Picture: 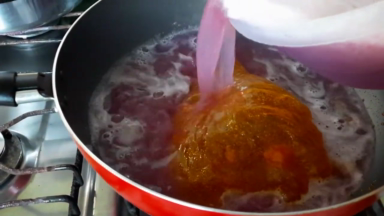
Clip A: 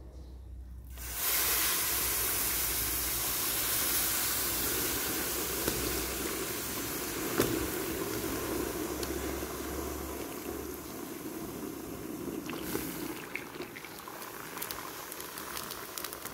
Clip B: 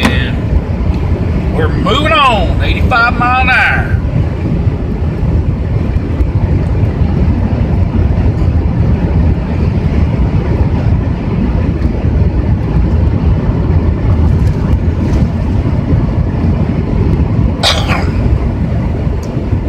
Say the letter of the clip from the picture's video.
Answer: A